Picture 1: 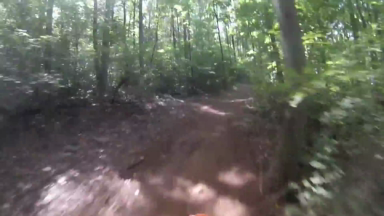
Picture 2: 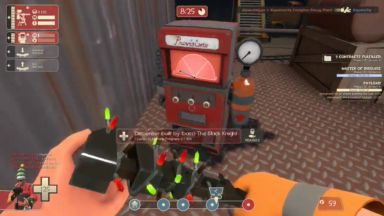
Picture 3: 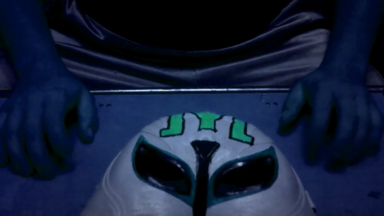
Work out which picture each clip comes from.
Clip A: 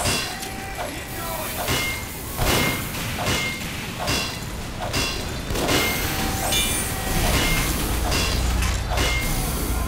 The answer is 2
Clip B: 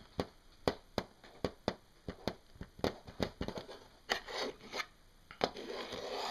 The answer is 3